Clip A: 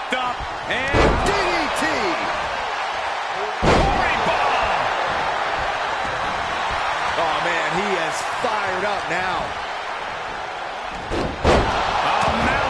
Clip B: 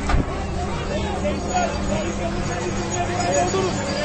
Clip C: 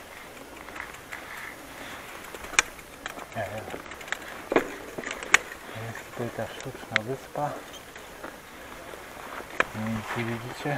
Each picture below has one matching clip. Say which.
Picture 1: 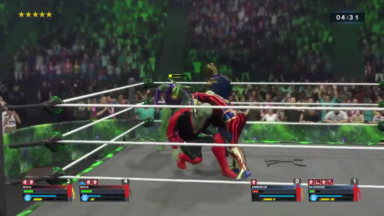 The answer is A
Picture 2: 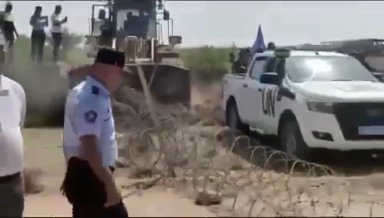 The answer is B